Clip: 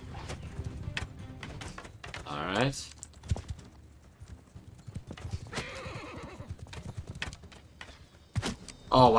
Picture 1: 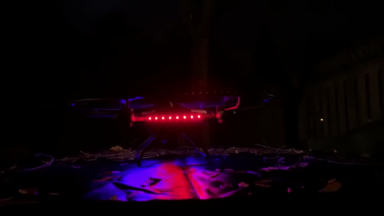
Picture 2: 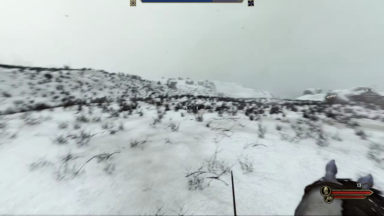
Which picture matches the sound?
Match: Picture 2